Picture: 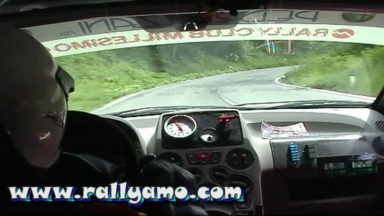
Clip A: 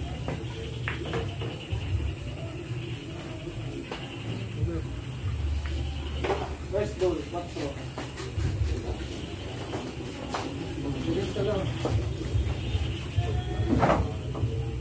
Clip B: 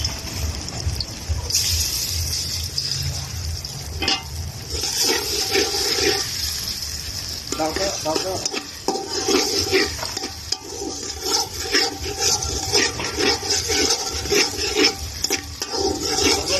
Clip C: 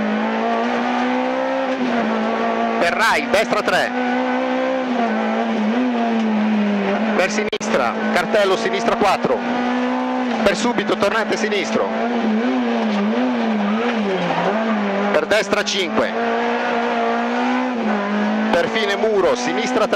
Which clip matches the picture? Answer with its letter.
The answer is C